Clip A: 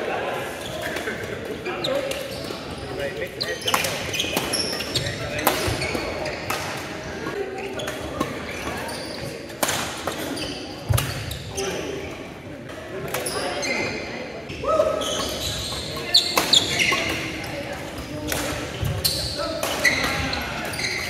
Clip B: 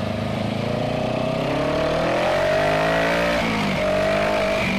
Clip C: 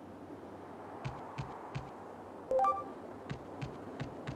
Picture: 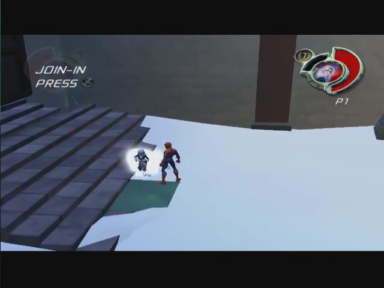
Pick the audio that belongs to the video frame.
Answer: C